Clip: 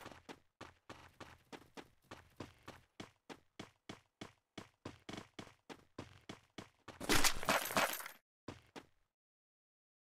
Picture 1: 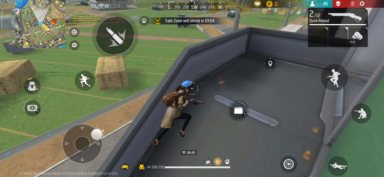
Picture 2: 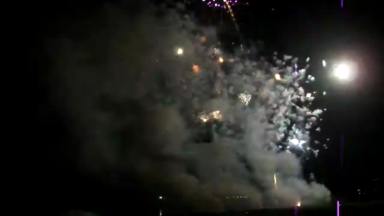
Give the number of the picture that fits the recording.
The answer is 1